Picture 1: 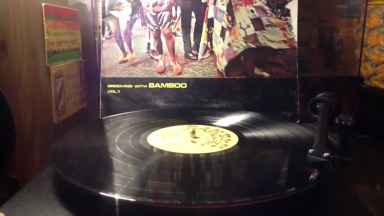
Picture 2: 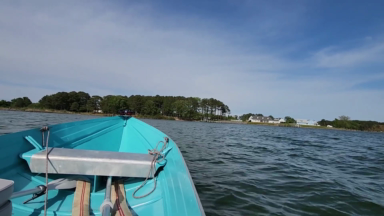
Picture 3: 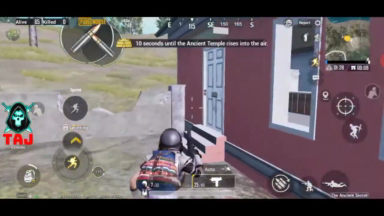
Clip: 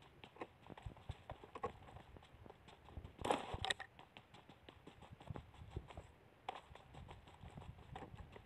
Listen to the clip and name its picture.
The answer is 3